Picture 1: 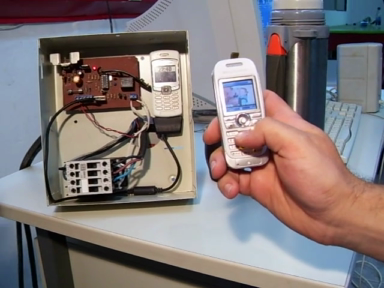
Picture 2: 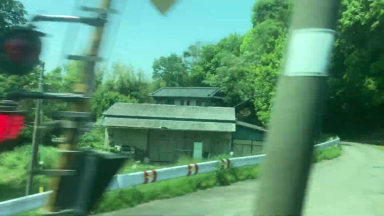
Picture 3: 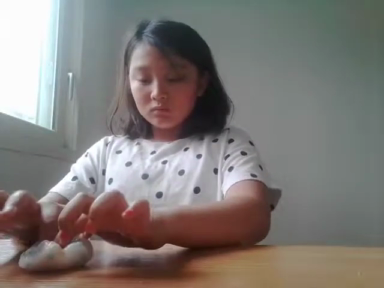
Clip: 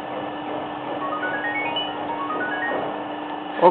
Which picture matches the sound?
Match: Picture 1